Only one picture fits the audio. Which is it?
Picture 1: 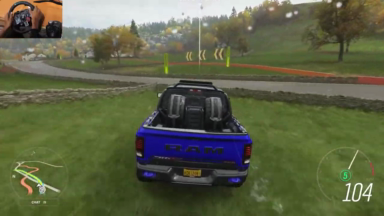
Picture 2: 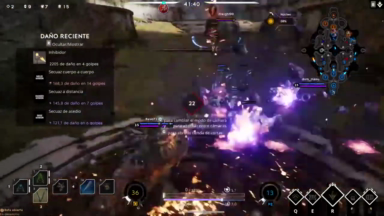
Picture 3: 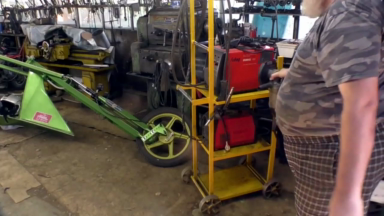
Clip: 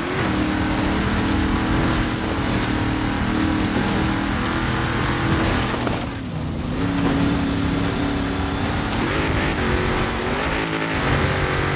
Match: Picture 1